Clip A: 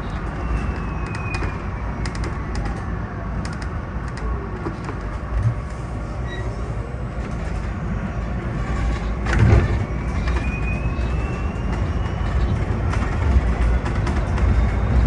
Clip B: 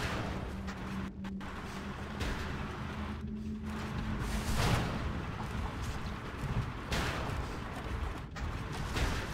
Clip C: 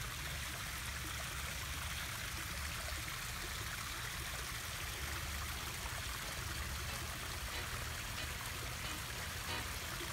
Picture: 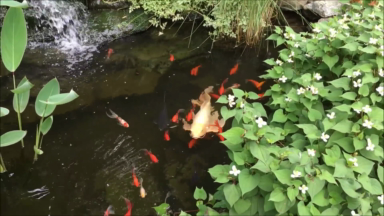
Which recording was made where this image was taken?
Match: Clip C